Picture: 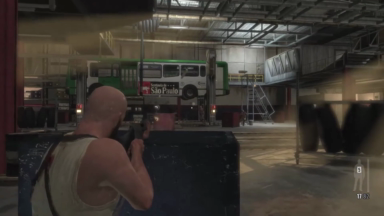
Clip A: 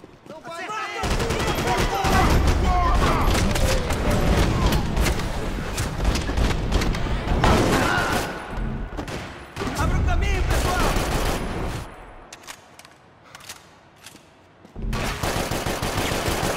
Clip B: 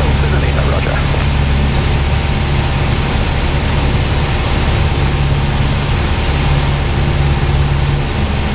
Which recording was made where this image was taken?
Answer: A